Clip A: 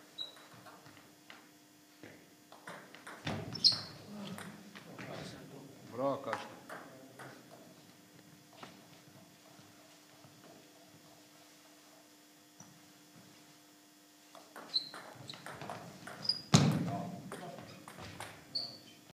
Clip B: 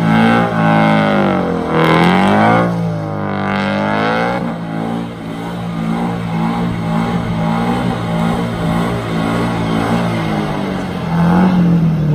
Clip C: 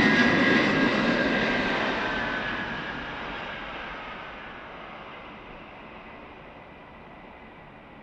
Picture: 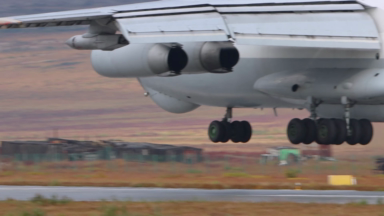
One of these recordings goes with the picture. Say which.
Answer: C